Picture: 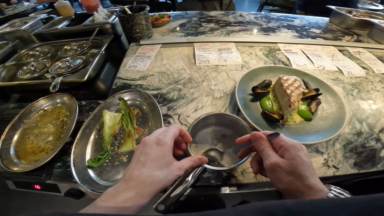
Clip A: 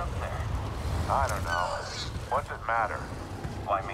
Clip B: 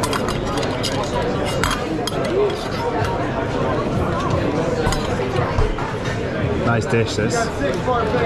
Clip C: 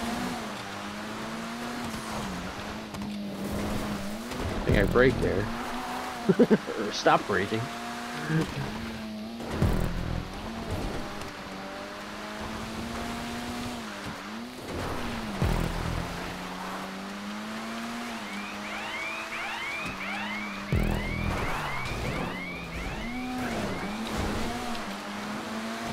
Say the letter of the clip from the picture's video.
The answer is B